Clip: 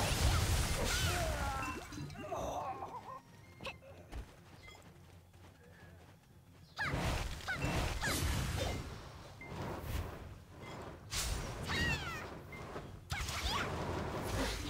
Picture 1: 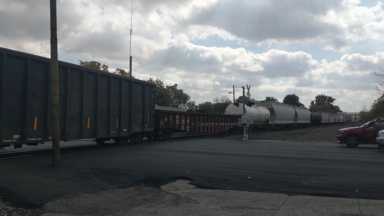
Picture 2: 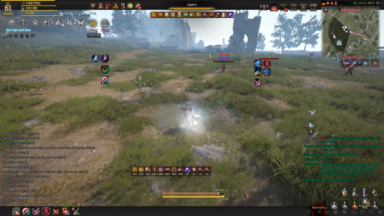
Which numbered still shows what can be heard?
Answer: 2